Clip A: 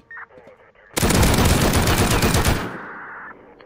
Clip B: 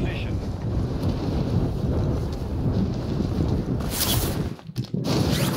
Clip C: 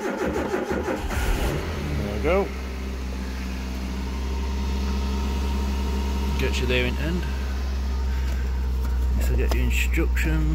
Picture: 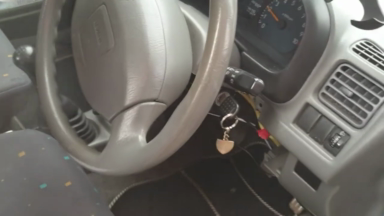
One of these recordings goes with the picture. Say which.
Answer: C